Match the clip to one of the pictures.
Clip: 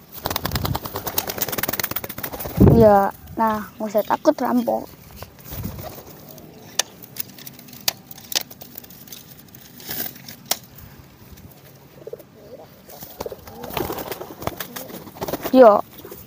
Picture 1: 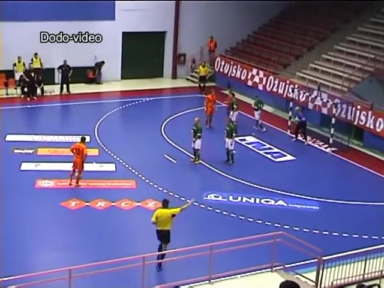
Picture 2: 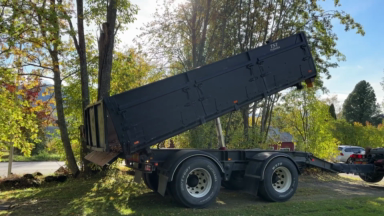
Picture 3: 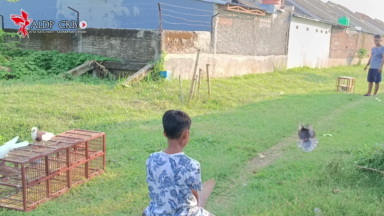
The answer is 3